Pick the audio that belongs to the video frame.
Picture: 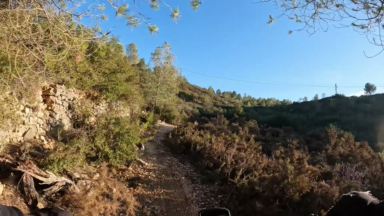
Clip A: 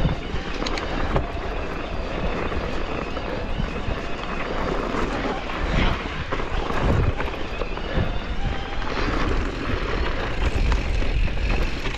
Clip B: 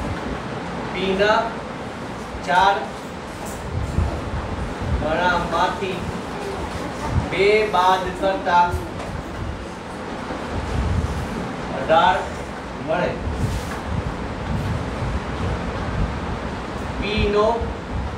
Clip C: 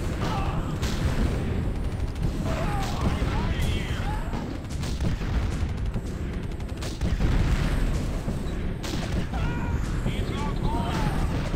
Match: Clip A